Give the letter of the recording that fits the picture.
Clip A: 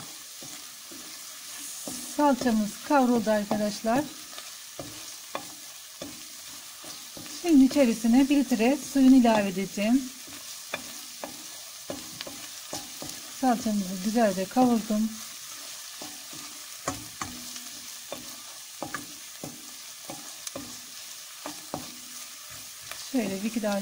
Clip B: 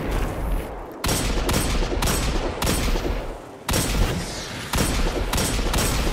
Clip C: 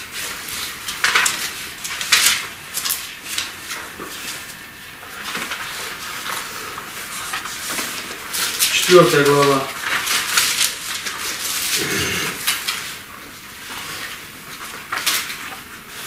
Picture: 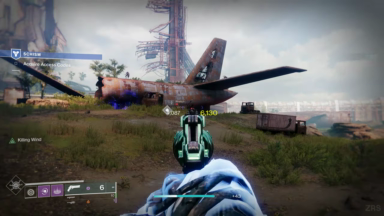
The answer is B